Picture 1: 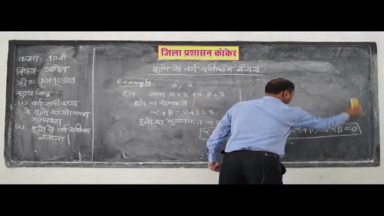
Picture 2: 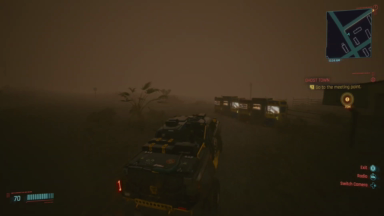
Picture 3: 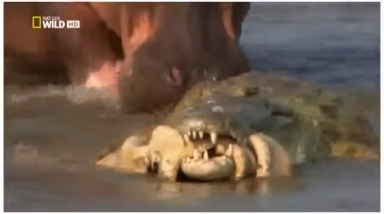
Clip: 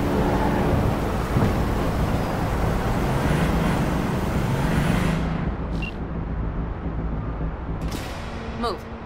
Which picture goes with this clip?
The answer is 2